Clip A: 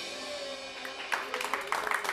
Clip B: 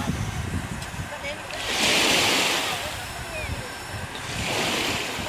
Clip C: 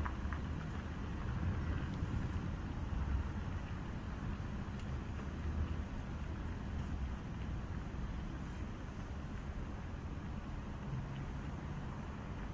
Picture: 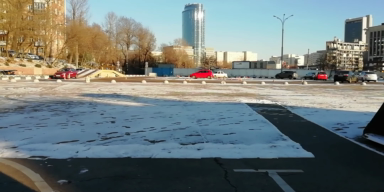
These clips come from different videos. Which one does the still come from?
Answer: C